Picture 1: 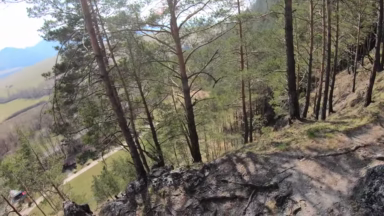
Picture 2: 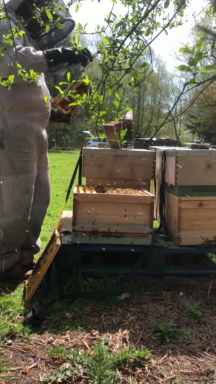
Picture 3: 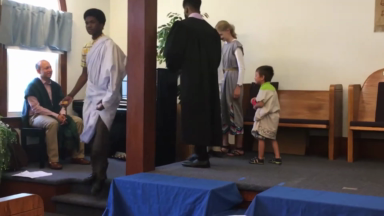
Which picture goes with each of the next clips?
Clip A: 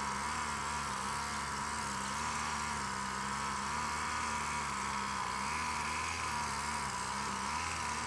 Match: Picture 2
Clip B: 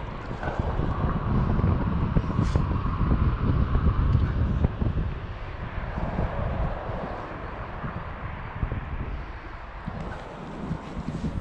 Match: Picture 1